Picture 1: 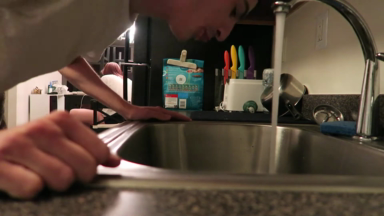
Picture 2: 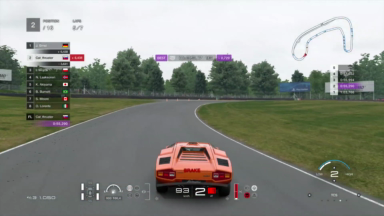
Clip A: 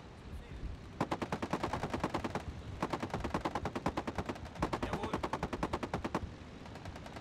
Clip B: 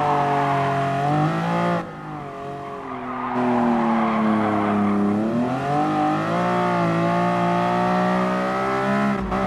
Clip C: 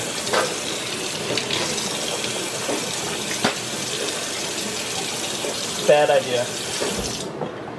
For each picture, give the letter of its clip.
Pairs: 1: C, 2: B